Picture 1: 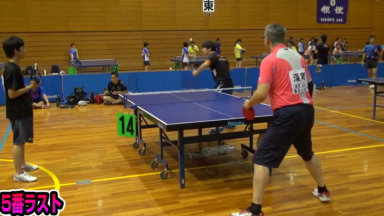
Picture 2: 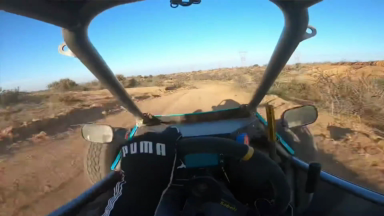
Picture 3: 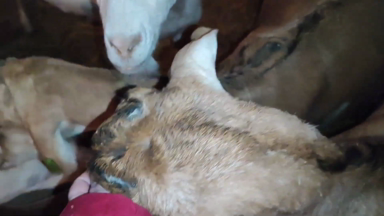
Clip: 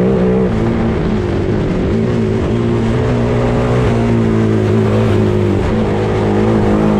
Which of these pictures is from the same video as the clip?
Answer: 2